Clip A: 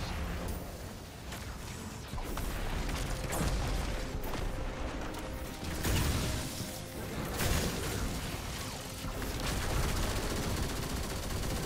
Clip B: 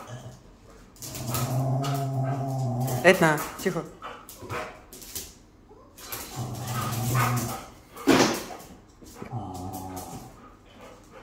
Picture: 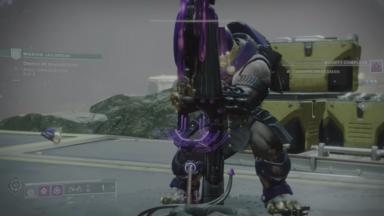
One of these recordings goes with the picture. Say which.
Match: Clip A